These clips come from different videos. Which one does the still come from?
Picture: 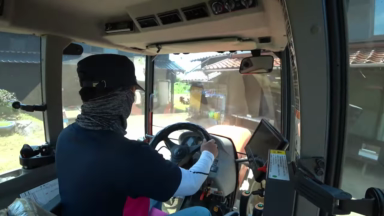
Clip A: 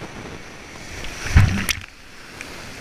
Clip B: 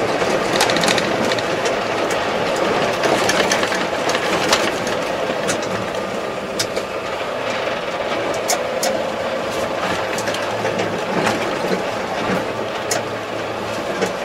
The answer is B